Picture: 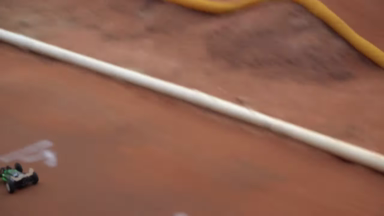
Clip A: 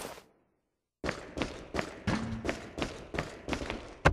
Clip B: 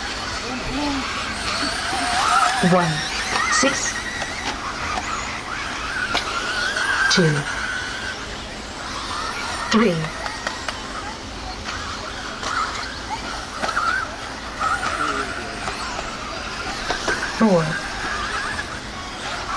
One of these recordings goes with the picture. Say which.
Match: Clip B